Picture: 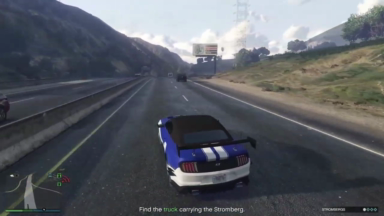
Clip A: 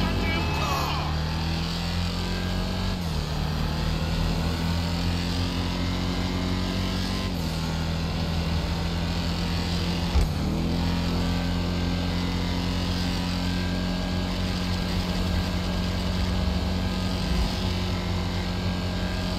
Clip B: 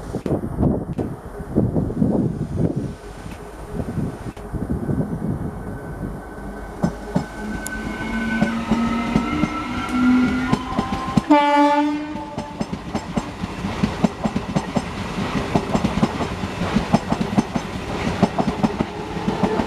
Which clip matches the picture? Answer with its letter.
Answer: A